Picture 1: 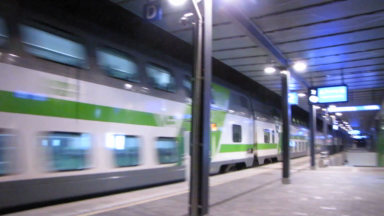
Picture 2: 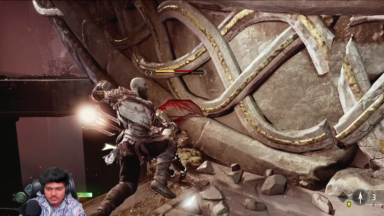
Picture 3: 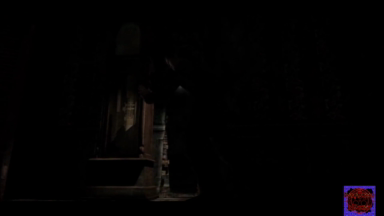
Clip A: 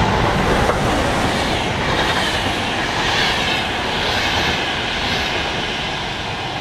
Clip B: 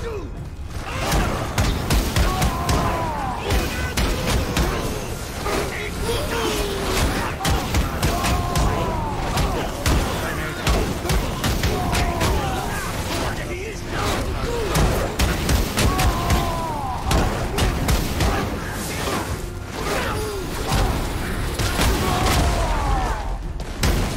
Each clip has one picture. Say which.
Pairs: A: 1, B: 2